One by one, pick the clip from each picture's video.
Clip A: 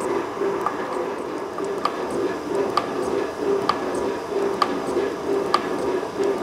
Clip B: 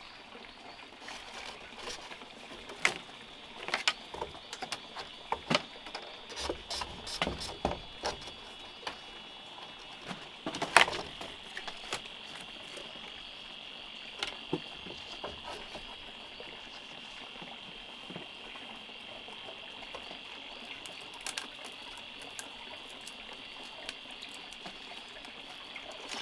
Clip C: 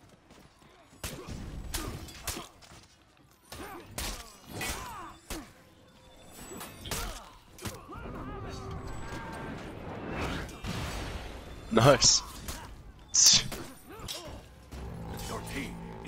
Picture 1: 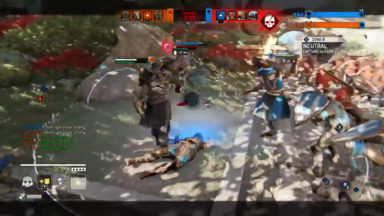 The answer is C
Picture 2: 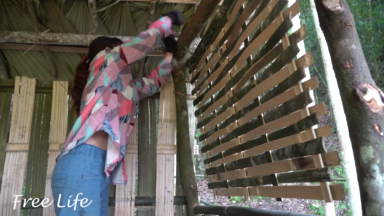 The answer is B